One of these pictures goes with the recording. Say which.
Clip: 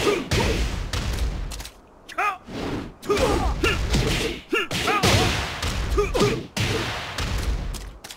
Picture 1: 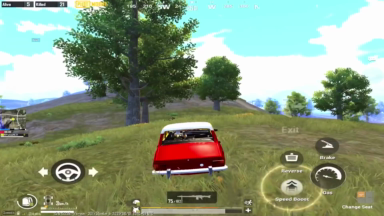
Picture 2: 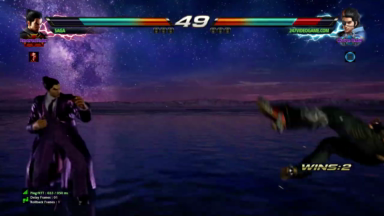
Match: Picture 2